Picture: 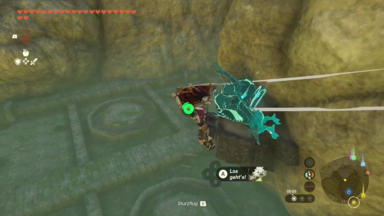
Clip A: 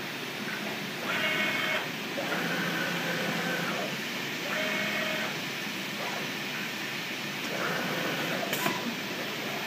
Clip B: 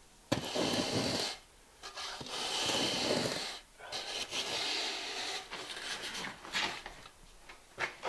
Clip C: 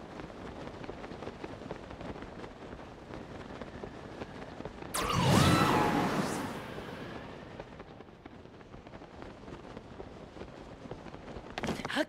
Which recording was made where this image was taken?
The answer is C